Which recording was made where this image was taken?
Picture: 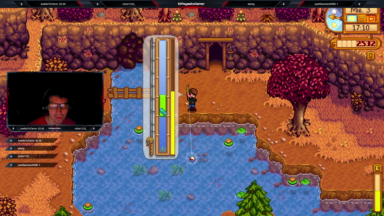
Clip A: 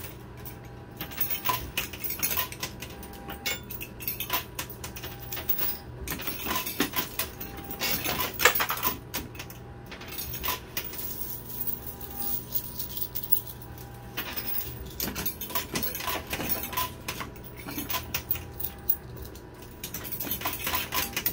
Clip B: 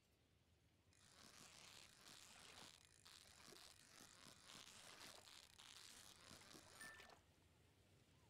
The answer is B